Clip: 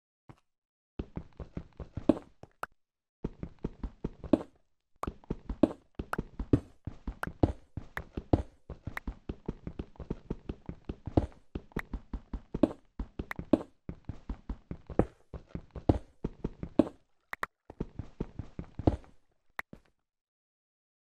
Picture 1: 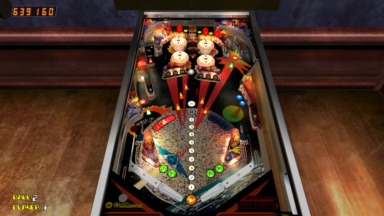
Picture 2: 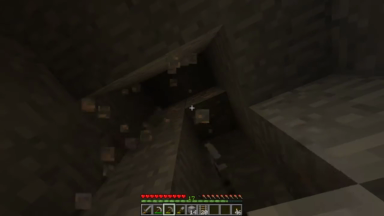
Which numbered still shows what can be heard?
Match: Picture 2